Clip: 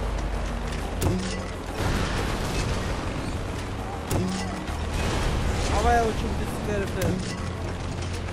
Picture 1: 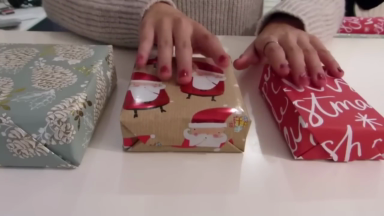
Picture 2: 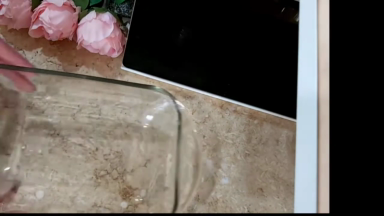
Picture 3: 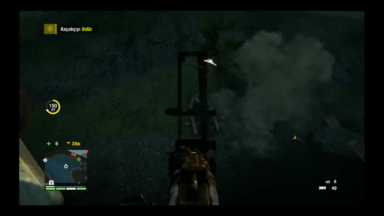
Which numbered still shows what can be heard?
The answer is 3